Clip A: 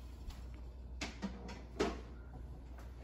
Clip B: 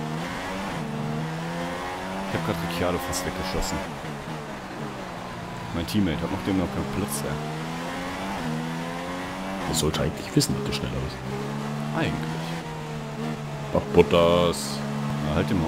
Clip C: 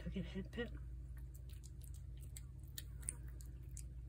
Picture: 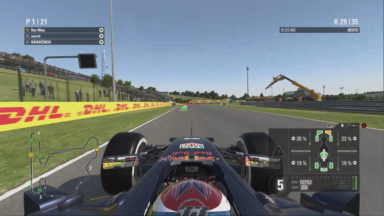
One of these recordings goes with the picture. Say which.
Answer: B